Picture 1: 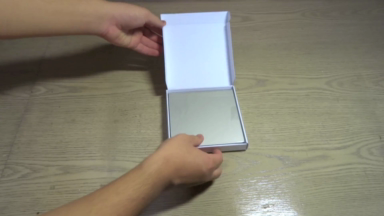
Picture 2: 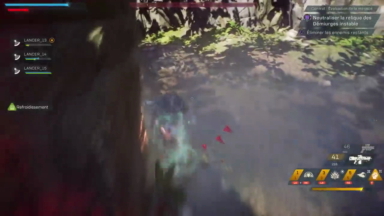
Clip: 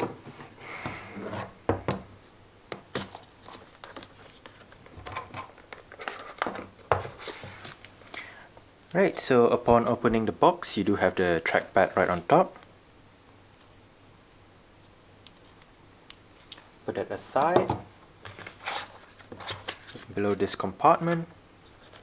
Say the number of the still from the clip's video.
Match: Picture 1